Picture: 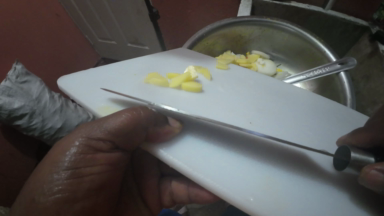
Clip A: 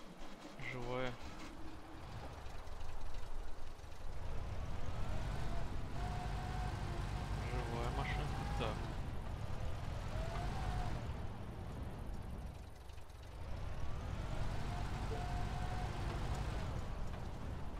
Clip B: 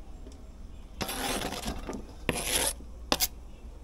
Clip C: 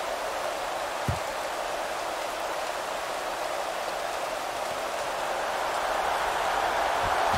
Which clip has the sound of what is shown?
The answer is B